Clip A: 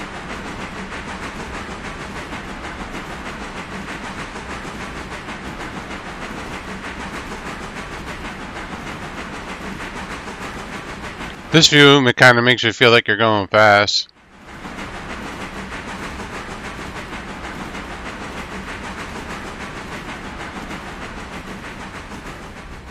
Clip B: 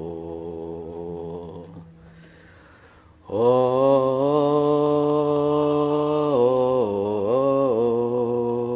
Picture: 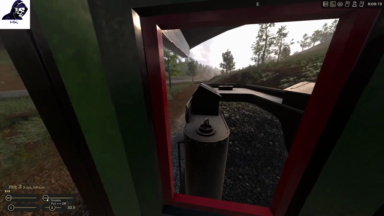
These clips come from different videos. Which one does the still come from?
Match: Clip A